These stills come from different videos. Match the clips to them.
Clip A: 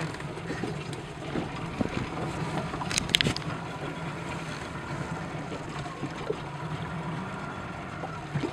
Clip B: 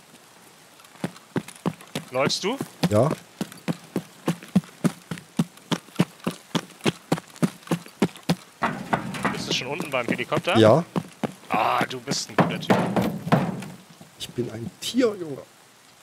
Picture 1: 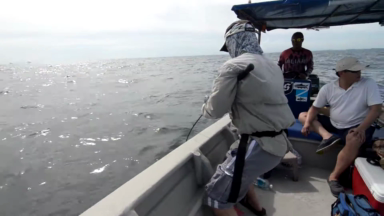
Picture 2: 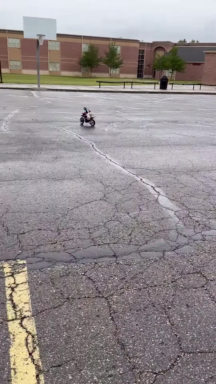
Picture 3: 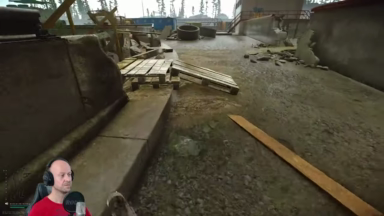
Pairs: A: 1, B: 3